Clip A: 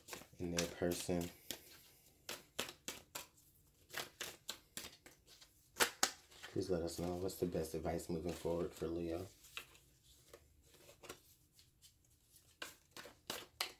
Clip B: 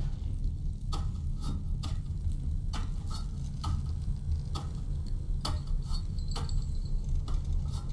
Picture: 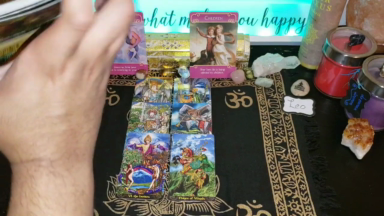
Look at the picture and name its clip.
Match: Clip A